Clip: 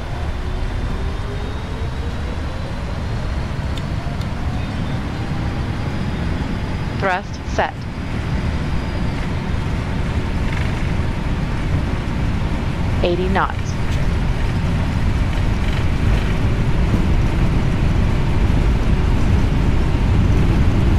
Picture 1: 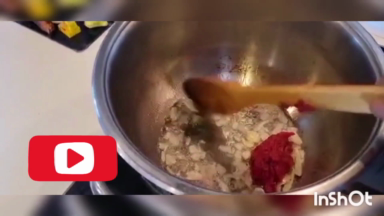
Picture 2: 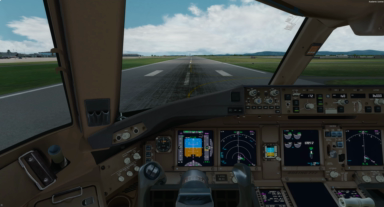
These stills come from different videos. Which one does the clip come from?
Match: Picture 2